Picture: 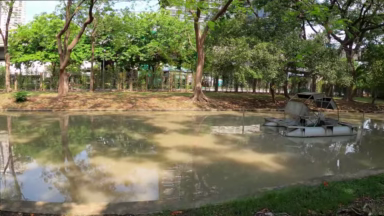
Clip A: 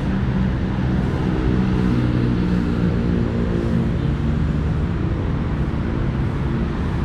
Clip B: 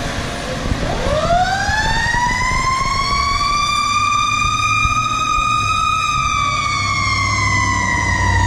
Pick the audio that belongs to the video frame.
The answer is A